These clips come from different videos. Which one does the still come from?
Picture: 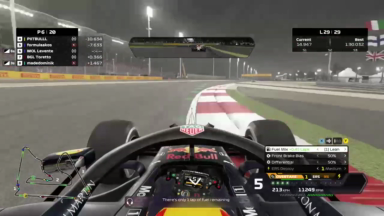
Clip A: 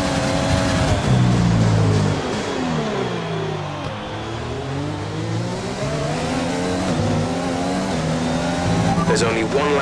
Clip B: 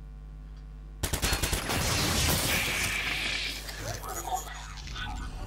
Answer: A